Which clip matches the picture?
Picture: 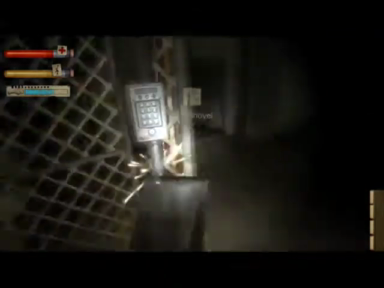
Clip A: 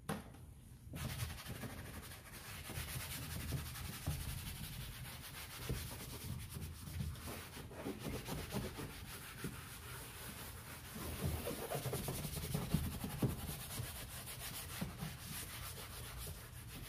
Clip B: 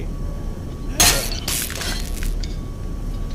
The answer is B